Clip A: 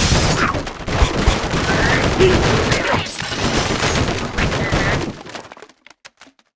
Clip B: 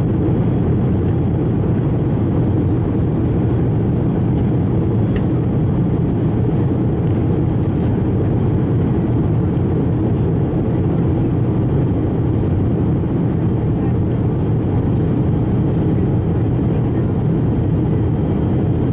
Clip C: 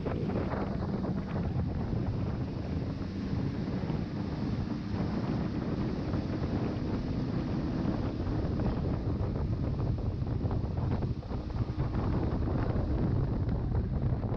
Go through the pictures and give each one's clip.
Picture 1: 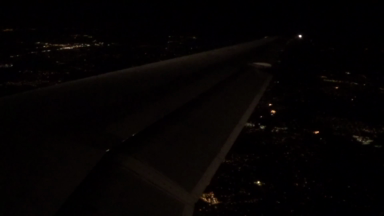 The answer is B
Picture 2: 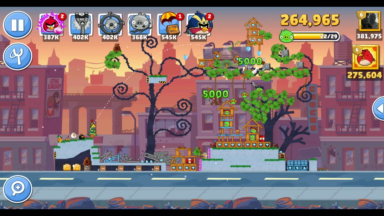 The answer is A